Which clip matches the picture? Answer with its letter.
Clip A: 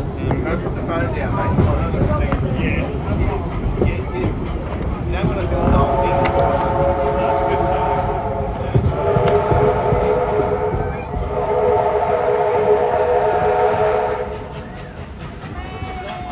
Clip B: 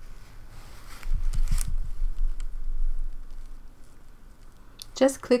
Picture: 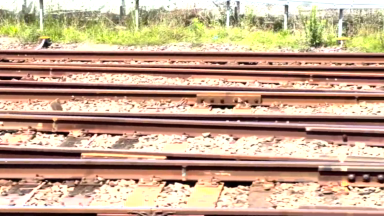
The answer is A